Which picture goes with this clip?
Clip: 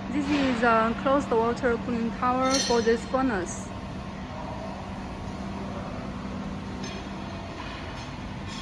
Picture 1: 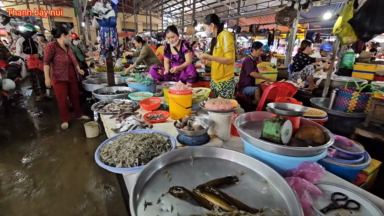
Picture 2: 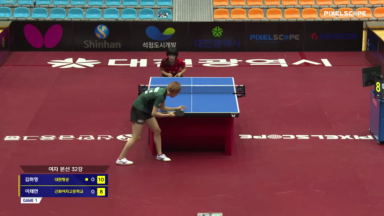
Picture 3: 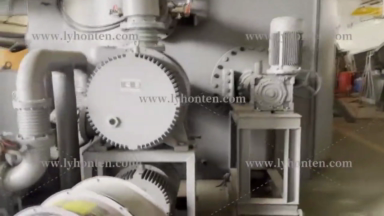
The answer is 3